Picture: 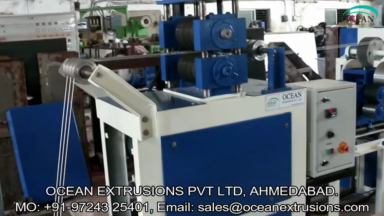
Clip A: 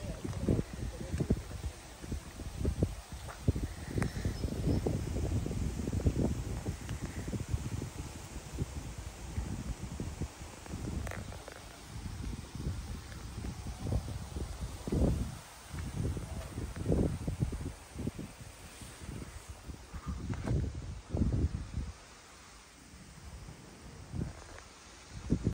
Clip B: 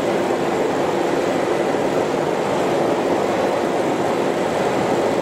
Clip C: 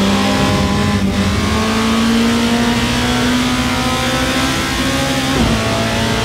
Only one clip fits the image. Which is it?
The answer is B